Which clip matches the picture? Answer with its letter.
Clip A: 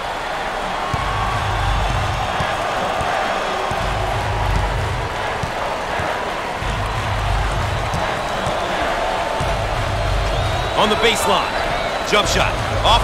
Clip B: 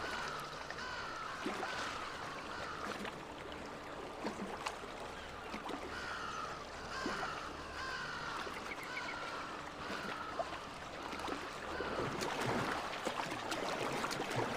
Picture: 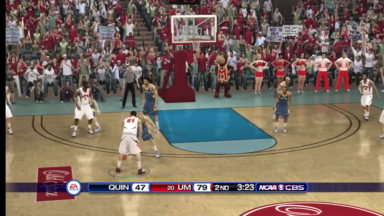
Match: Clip A